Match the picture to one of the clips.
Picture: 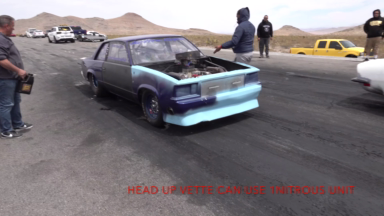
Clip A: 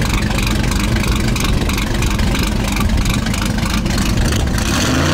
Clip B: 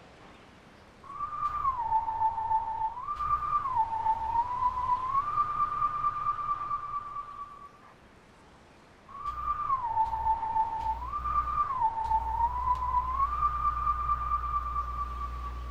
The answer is A